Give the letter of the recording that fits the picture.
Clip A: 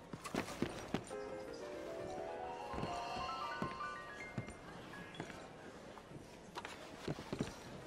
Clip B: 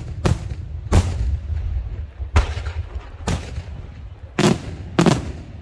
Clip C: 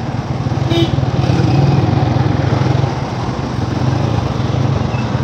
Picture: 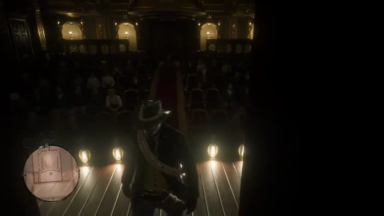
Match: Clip A